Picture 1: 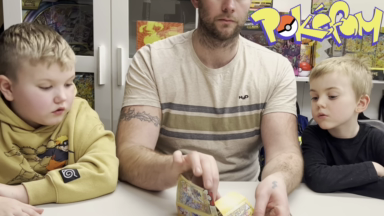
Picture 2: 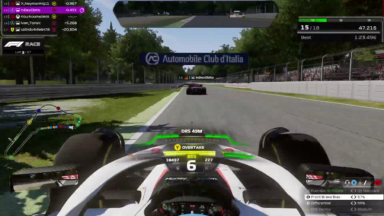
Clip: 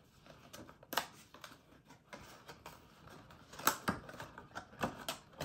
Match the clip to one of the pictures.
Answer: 1